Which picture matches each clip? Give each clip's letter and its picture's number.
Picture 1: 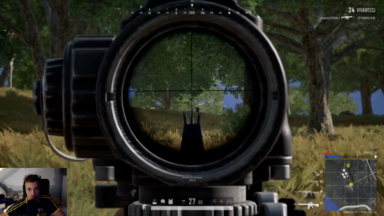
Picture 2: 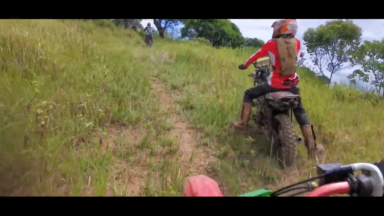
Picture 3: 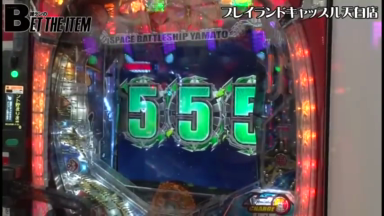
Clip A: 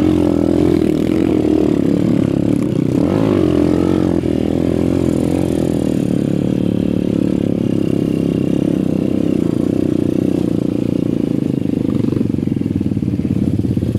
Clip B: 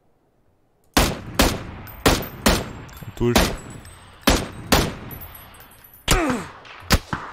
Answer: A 2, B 1